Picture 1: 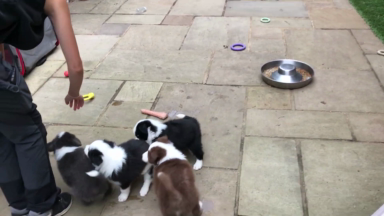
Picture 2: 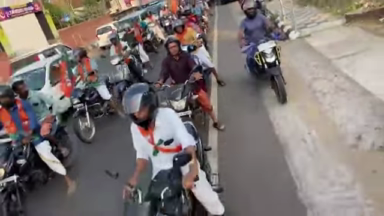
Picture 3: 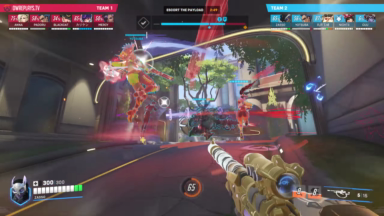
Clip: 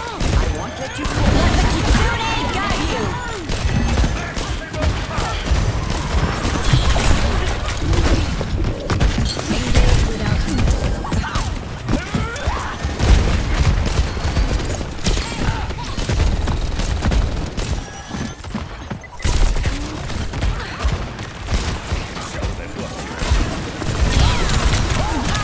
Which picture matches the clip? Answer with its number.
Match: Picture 3